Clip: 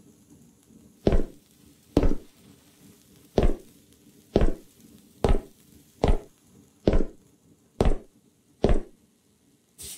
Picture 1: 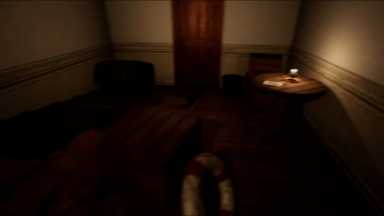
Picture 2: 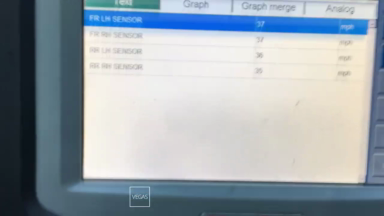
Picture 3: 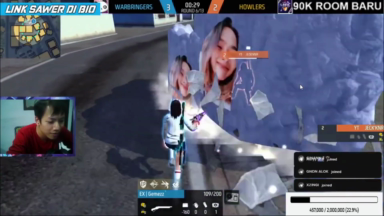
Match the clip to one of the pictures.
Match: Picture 1